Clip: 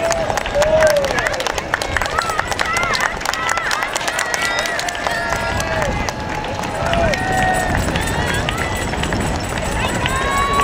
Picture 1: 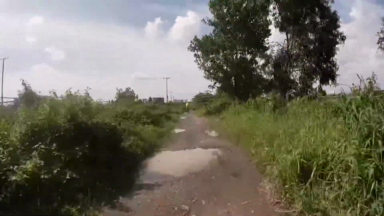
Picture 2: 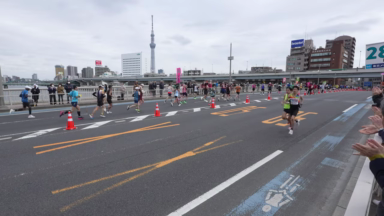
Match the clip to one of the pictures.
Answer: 2